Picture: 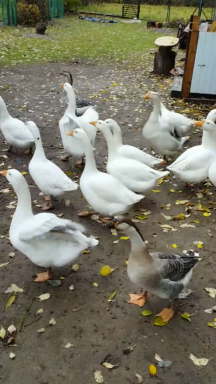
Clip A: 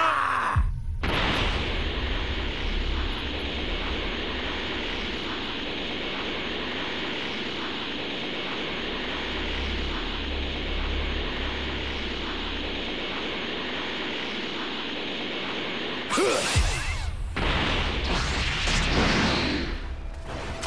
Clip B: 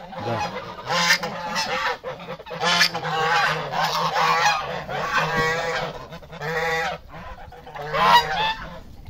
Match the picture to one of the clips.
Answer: B